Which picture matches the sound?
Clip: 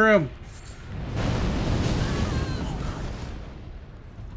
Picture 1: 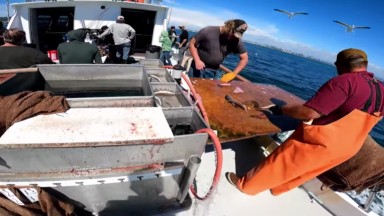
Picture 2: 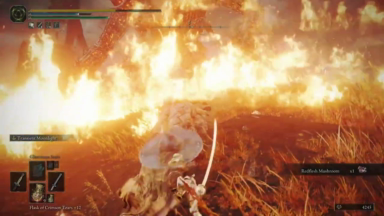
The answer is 2